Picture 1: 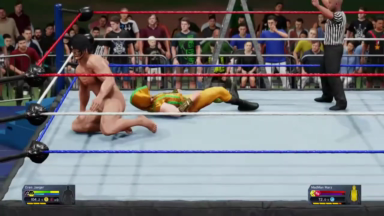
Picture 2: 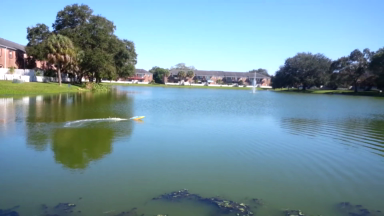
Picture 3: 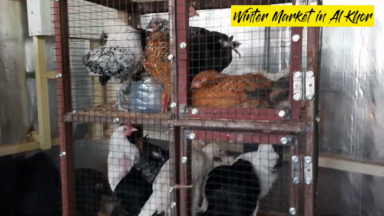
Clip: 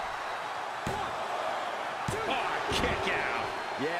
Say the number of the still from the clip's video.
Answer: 1